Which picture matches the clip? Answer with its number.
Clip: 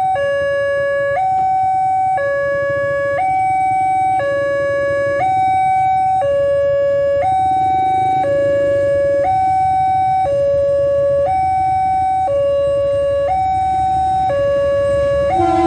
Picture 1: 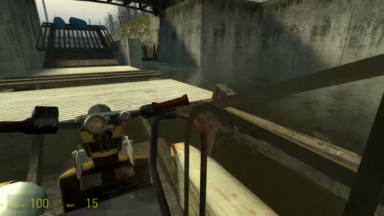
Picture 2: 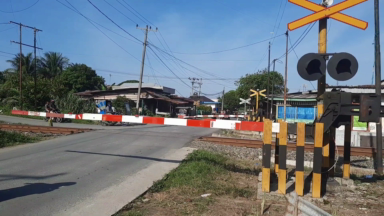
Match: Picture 2